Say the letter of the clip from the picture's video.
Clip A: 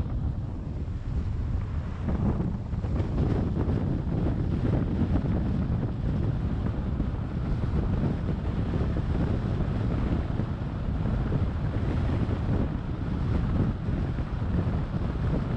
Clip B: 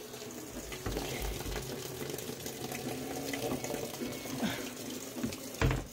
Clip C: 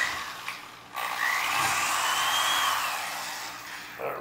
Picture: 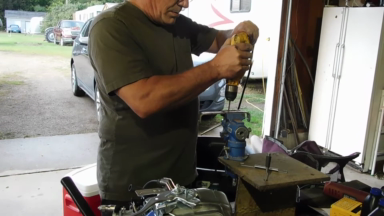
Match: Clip C